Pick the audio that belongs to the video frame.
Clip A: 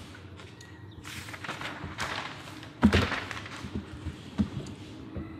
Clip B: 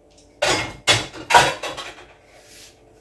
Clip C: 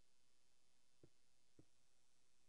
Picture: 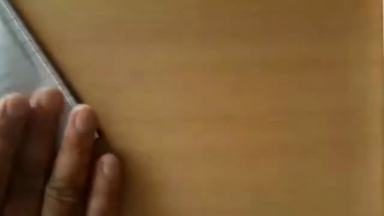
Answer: A